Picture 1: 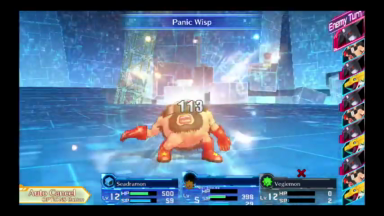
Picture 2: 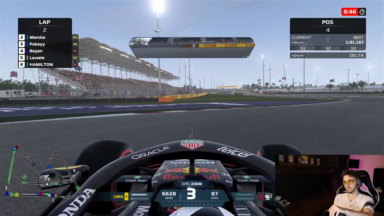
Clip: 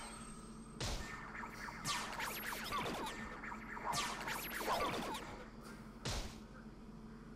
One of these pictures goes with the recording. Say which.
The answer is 1